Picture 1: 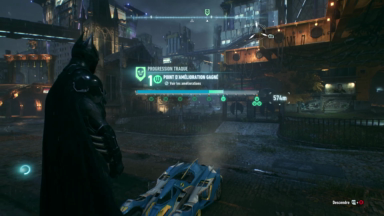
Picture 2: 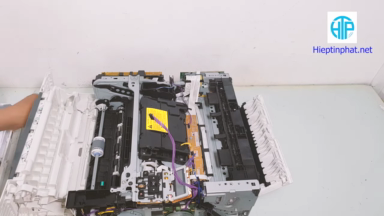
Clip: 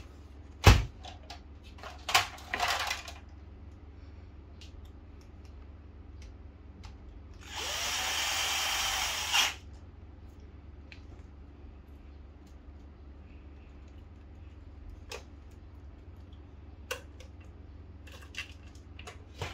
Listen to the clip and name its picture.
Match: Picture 2